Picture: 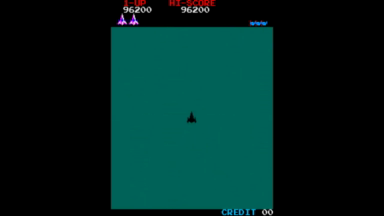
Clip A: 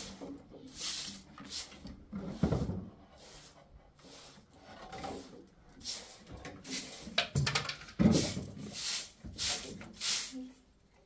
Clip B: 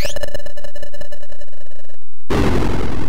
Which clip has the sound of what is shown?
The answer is B